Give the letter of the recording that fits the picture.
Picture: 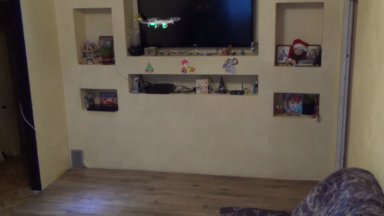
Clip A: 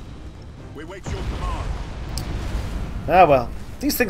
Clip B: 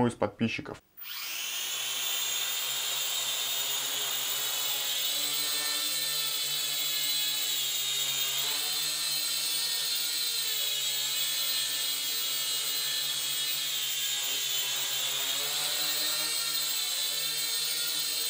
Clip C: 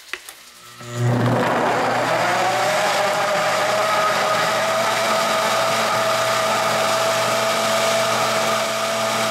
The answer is B